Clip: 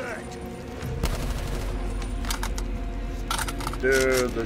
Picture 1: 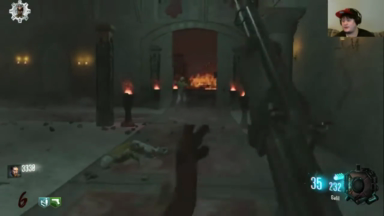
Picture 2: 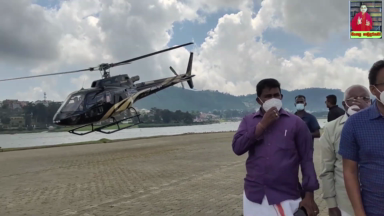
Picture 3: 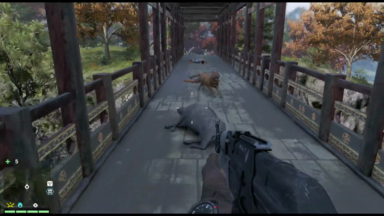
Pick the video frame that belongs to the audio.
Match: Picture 1